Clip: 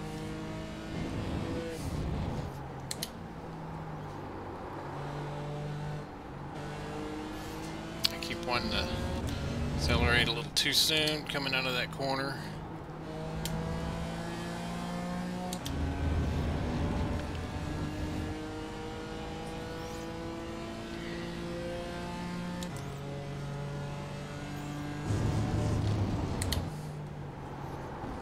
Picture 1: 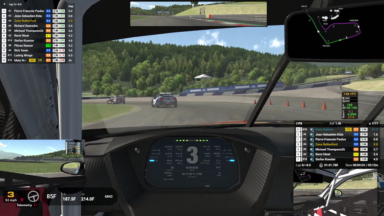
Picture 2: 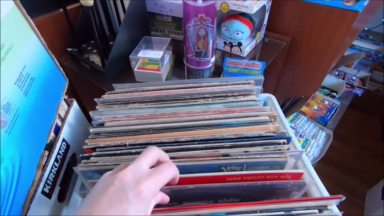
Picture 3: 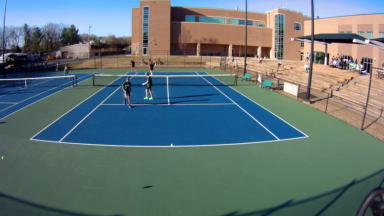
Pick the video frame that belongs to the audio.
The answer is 1